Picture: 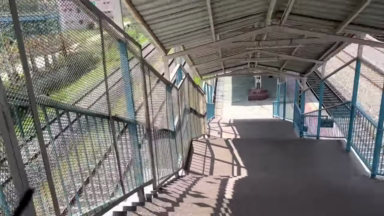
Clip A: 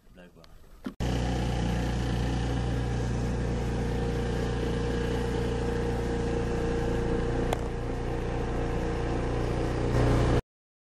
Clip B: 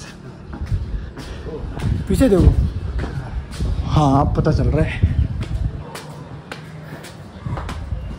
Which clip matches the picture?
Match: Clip B